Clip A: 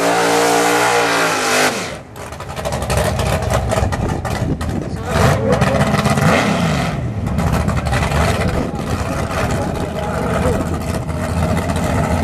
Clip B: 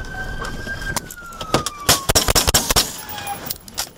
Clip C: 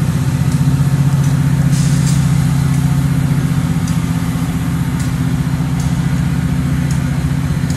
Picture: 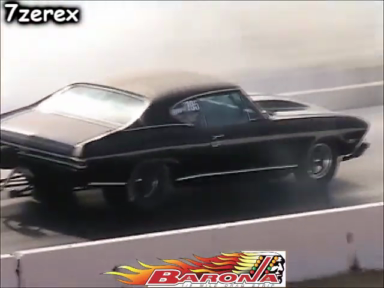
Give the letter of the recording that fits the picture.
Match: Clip A